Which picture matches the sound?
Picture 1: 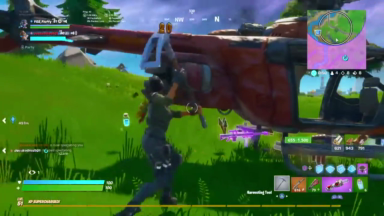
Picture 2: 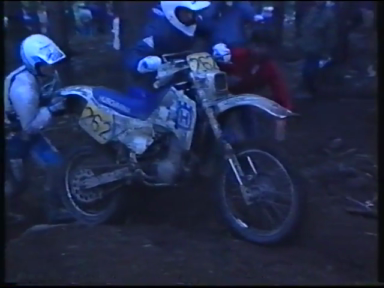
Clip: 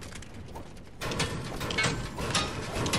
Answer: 1